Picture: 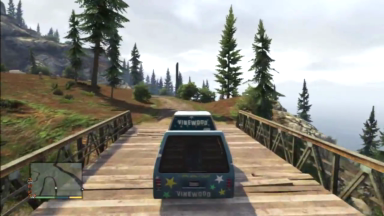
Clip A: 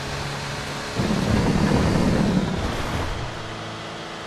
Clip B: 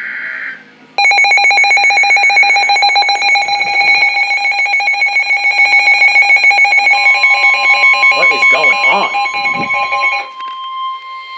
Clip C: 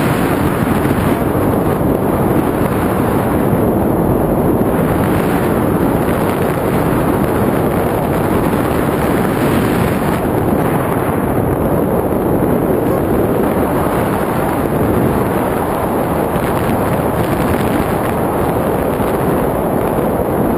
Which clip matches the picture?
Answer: A